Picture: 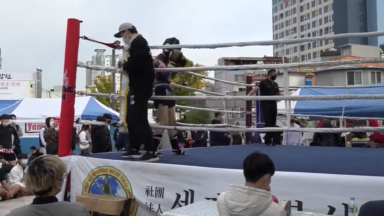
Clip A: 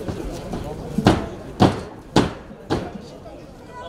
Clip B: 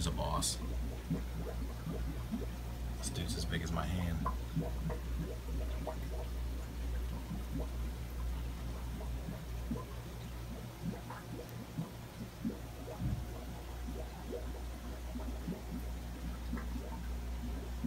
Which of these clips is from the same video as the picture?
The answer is A